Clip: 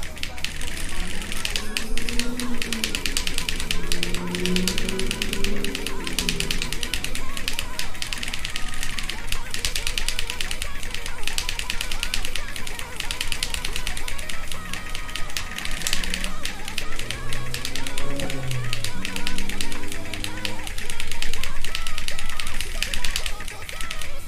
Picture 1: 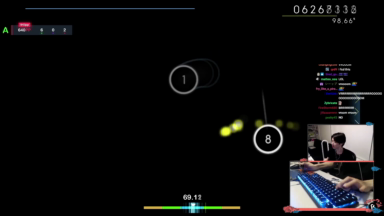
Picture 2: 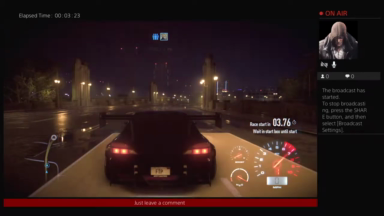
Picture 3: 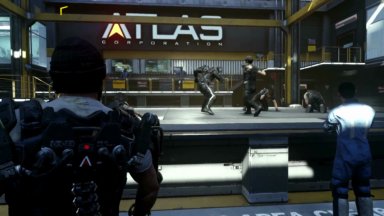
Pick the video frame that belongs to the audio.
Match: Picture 1